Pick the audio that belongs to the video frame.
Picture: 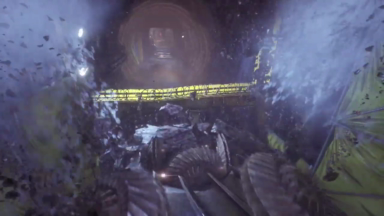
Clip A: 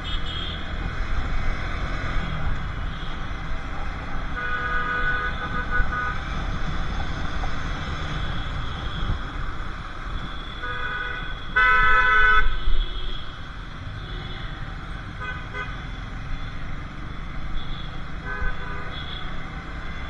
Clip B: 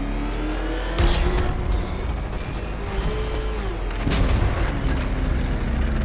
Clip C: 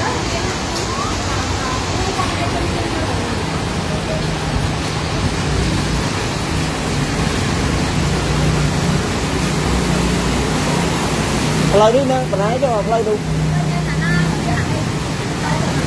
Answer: B